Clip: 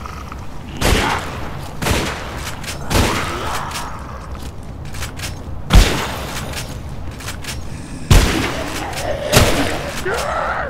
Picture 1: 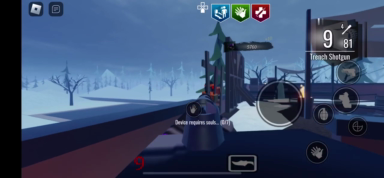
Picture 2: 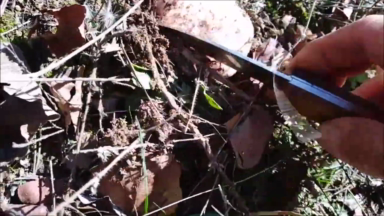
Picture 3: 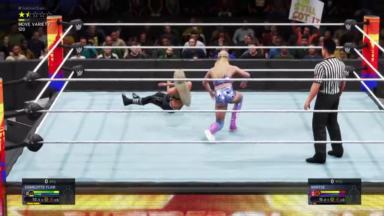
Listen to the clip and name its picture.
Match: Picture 1